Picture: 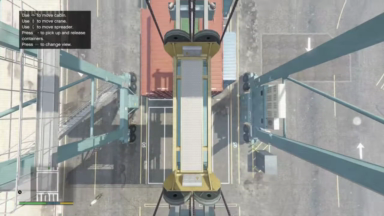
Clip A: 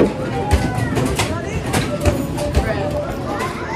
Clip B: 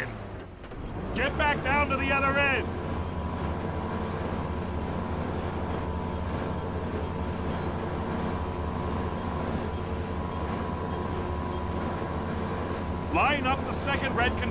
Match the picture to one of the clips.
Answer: B